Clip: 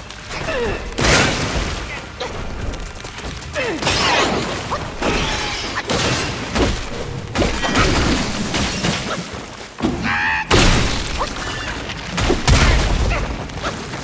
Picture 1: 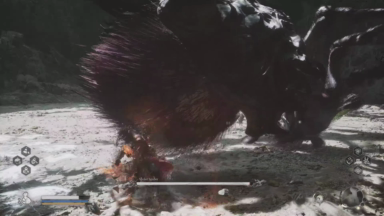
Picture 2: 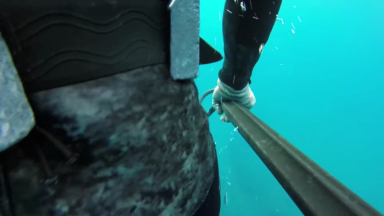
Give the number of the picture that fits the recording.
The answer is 1